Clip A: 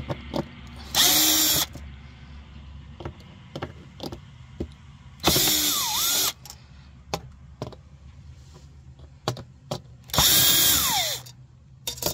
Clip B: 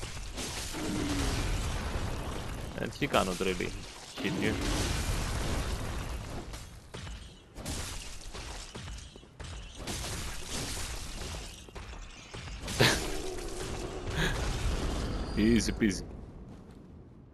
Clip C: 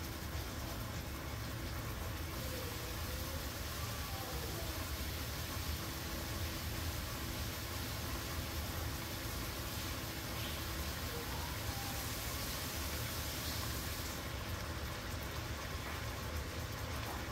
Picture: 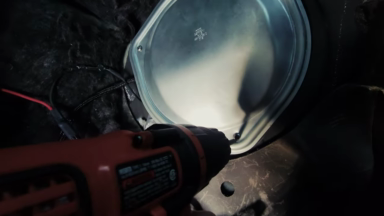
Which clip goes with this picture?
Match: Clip A